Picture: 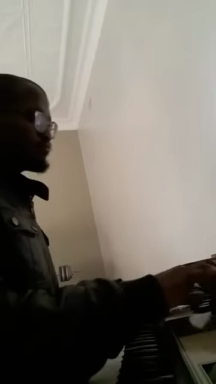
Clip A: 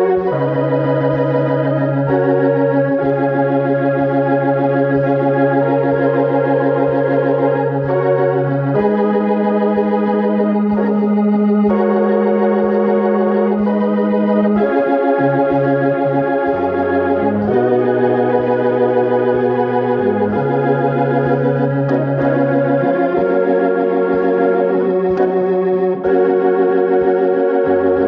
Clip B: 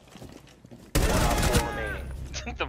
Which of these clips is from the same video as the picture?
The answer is A